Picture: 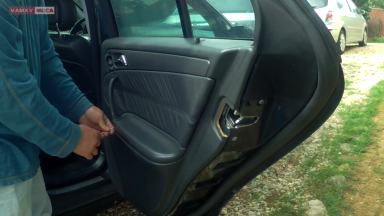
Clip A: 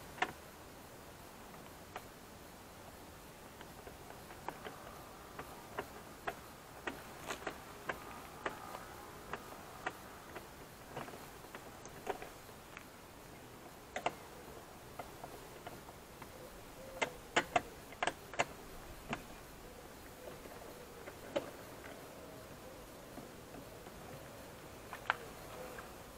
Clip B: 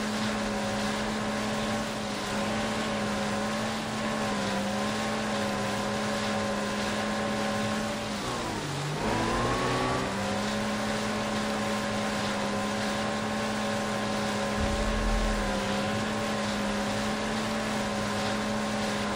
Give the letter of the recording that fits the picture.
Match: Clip A